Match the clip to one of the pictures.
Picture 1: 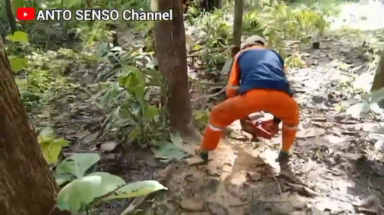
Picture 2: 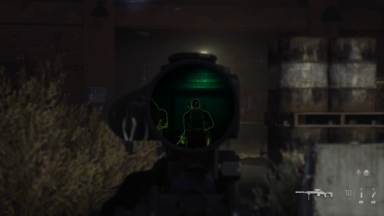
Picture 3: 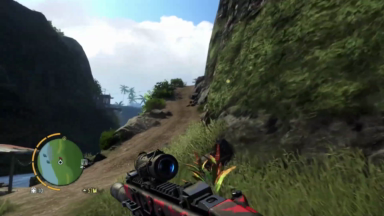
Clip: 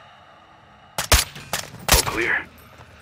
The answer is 2